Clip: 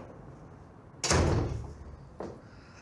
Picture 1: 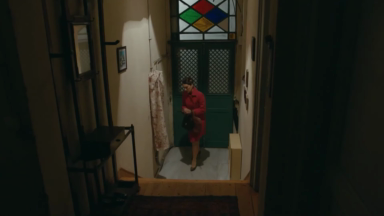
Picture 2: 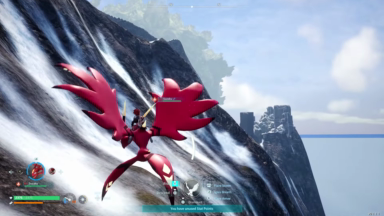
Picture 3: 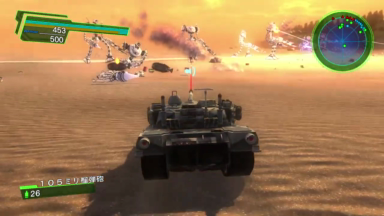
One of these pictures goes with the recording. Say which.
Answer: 1